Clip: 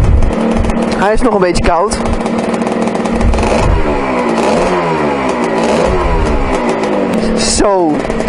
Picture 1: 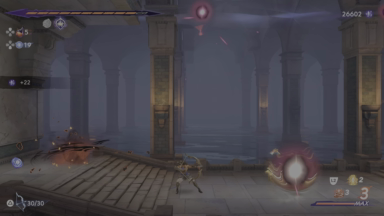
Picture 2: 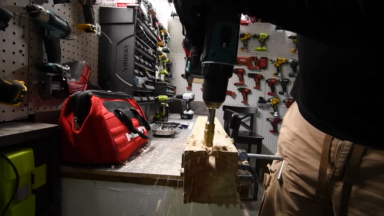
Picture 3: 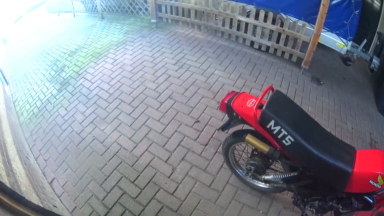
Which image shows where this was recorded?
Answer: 3